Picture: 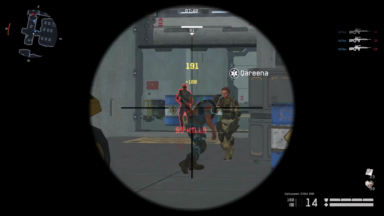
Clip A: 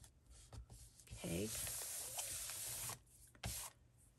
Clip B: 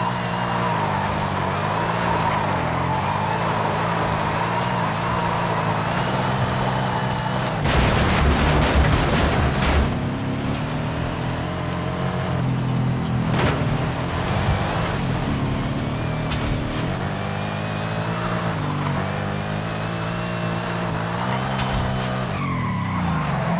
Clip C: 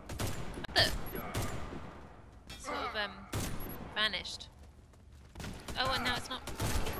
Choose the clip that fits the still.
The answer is C